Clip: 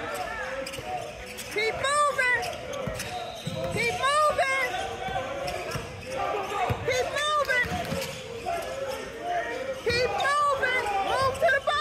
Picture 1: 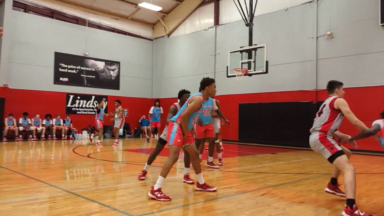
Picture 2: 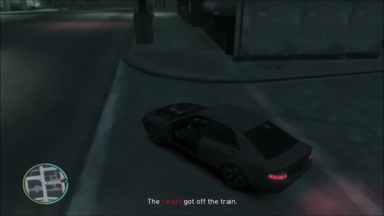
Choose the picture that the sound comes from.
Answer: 1